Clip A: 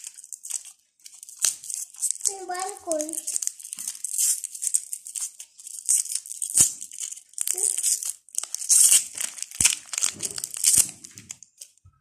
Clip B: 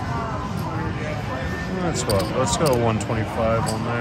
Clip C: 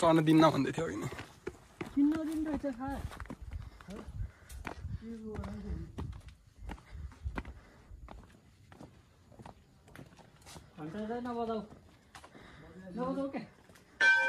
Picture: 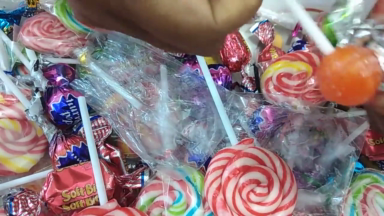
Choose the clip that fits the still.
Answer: A